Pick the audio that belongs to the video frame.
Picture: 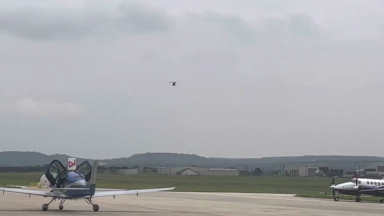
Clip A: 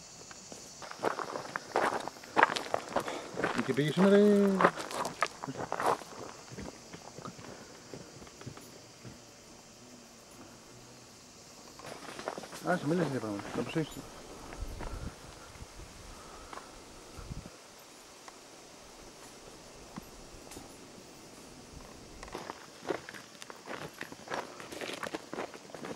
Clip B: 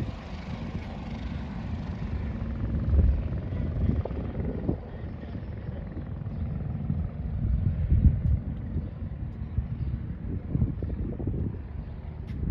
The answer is B